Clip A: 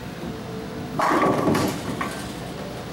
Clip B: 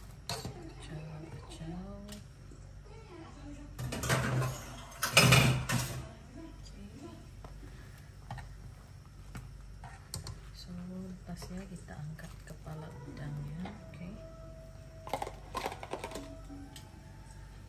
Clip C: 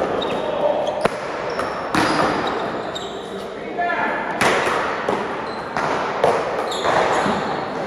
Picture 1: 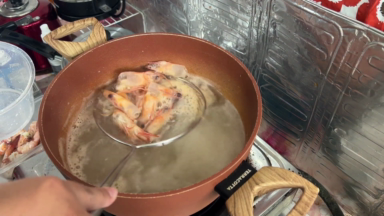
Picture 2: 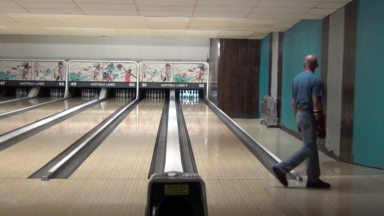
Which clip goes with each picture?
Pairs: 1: B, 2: A